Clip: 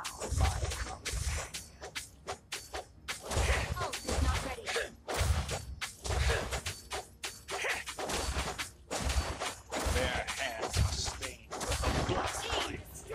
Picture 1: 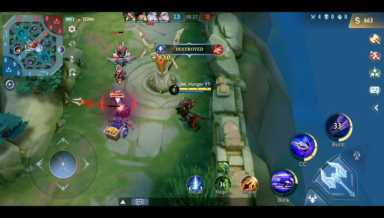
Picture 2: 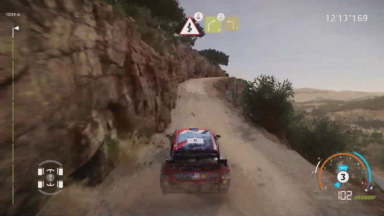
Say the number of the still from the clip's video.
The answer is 1